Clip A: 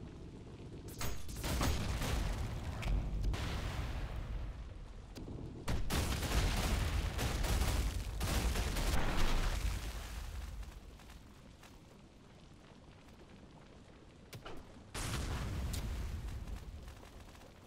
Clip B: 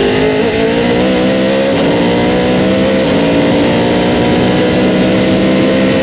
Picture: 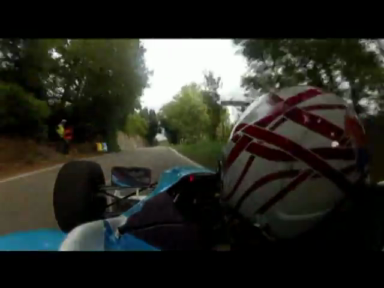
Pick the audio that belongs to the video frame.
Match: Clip B